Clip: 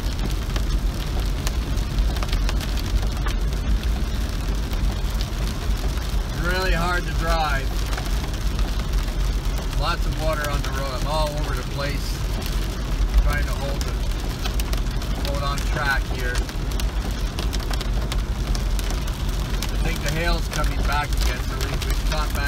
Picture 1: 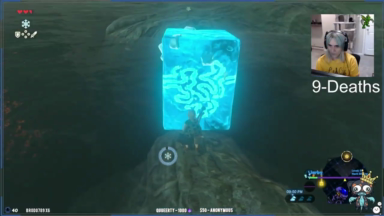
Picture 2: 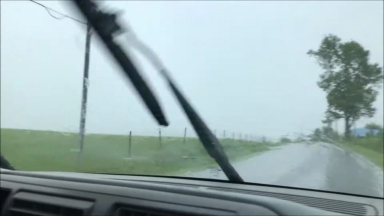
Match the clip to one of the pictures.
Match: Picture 2